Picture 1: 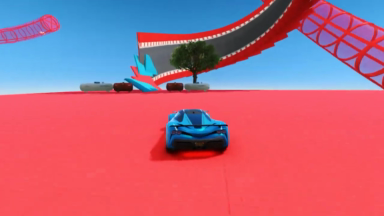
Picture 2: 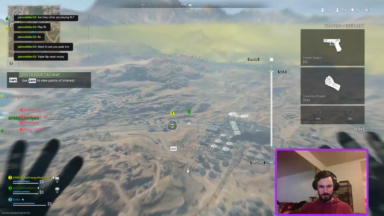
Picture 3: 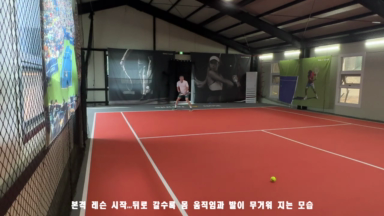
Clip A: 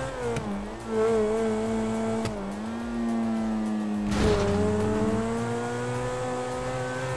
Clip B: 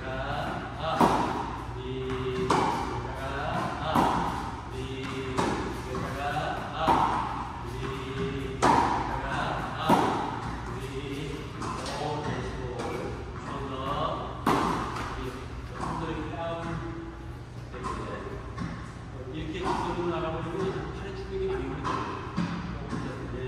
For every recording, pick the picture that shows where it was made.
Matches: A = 1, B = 3